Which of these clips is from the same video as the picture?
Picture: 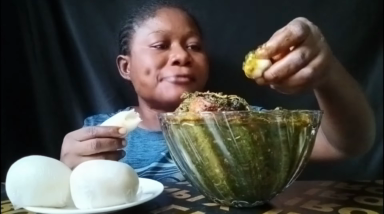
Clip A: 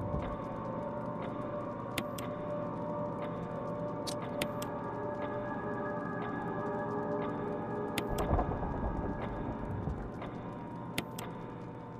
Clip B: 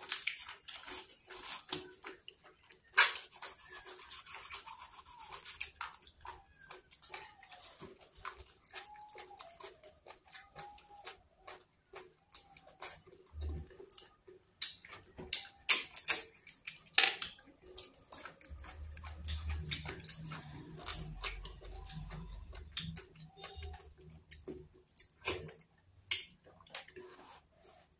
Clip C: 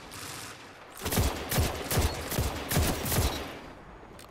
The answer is B